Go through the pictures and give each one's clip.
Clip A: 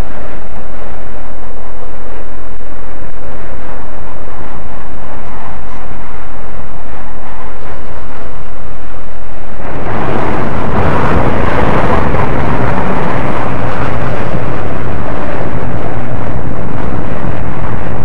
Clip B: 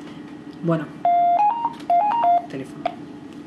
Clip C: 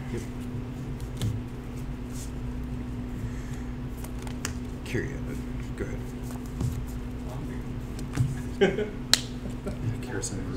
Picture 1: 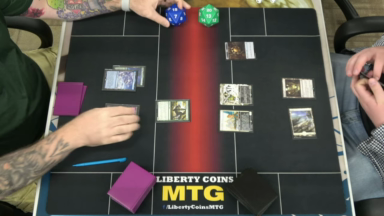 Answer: C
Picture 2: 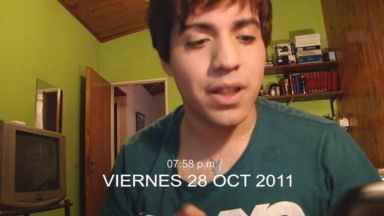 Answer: B